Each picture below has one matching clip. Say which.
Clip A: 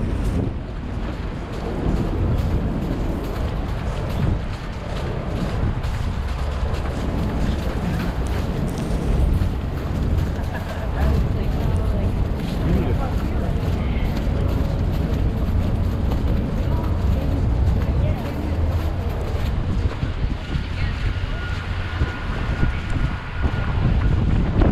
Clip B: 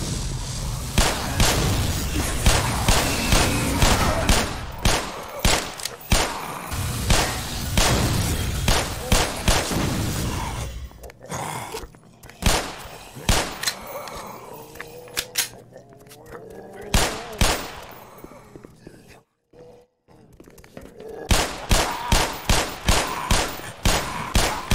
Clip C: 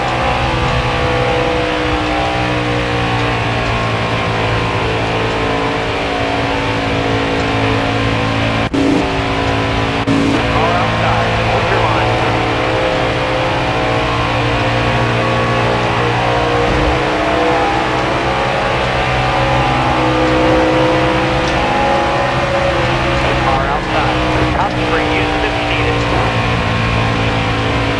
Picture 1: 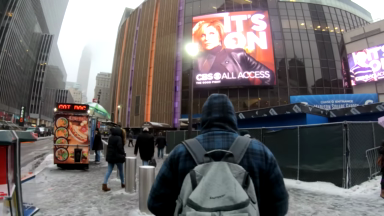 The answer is A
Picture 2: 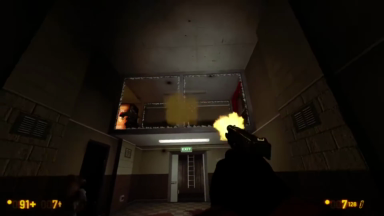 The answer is B